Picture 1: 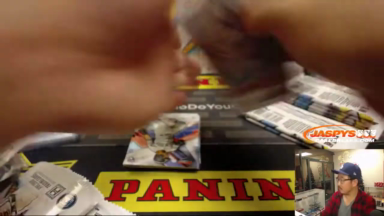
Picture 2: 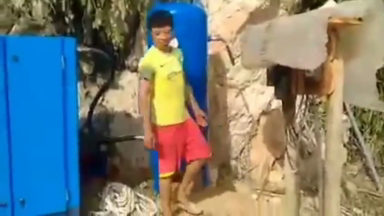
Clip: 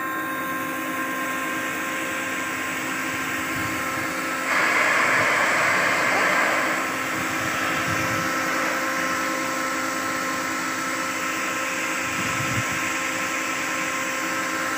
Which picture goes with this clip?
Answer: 2